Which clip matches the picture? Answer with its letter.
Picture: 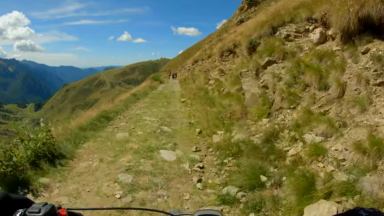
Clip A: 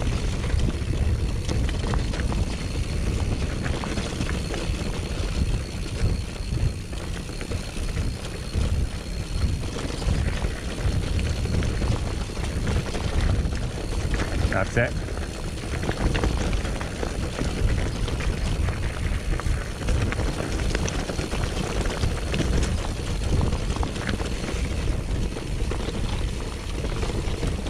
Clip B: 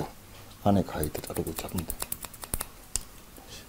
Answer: A